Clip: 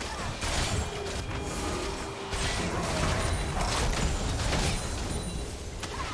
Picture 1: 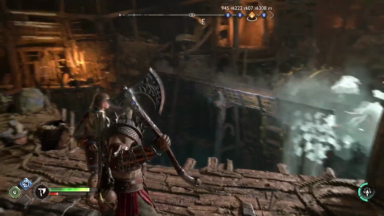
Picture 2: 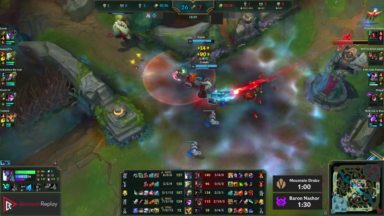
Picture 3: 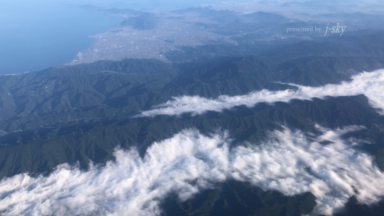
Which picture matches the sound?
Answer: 2